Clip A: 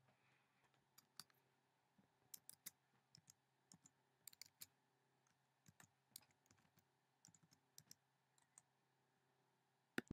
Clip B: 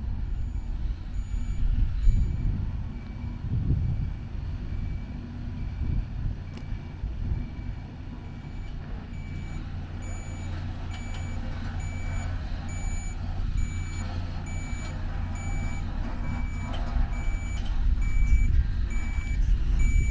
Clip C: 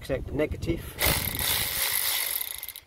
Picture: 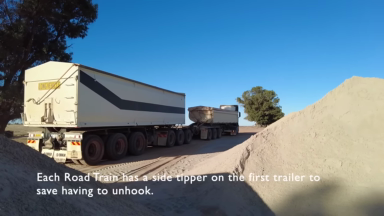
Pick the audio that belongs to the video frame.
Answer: B